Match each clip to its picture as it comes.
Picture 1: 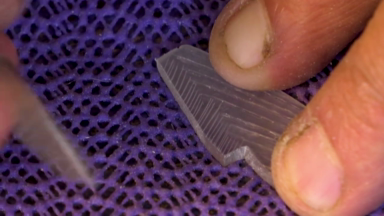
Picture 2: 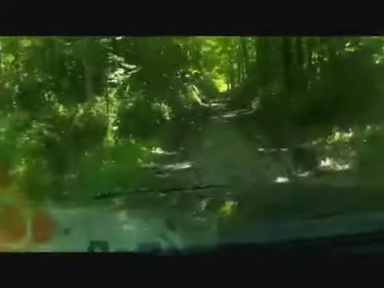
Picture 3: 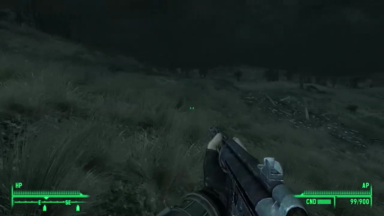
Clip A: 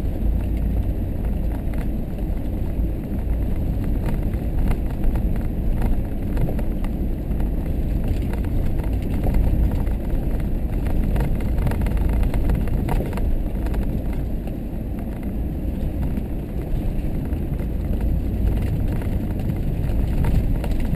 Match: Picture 2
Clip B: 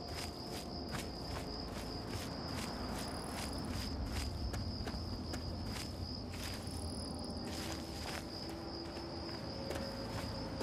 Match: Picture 3